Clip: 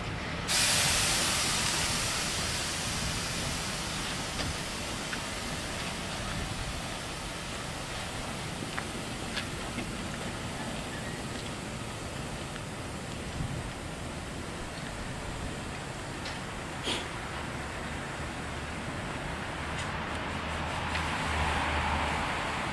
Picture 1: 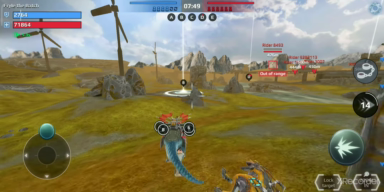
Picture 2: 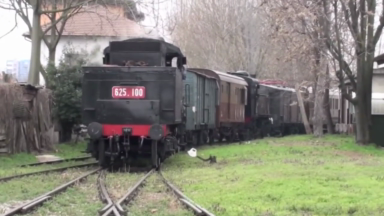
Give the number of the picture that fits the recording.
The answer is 2